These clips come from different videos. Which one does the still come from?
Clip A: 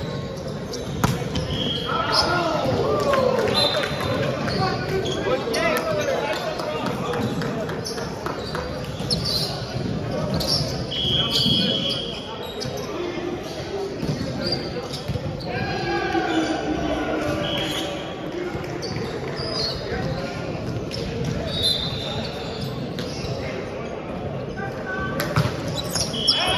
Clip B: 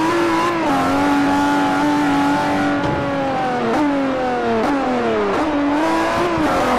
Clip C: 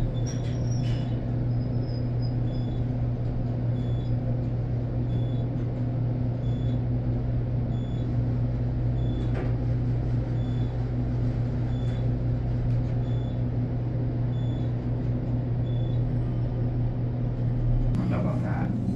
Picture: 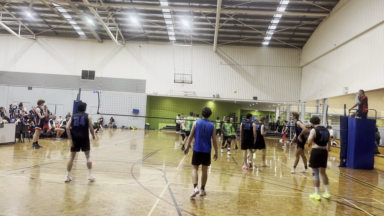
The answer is A